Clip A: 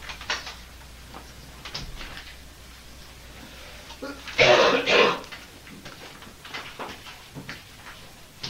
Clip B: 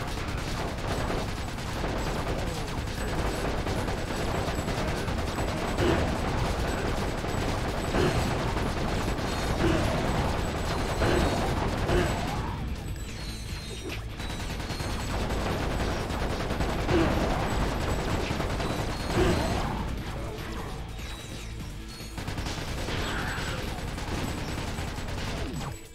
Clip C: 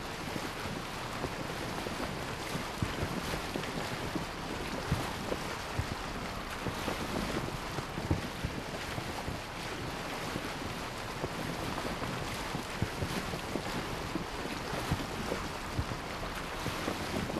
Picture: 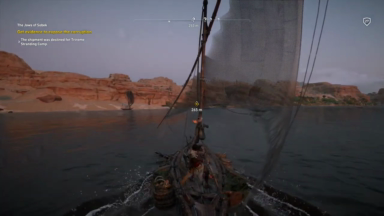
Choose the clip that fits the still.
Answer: C